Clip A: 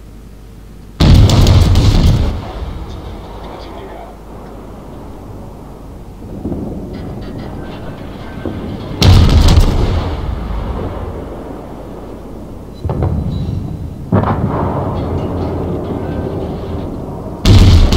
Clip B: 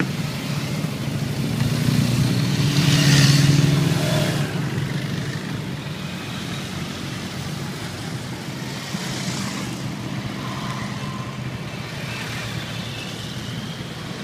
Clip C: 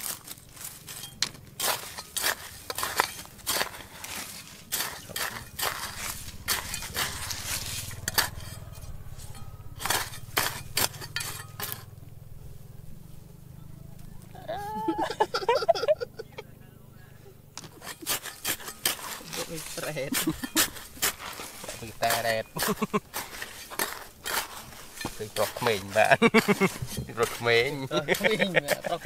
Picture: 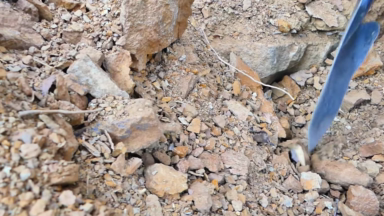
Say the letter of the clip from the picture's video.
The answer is C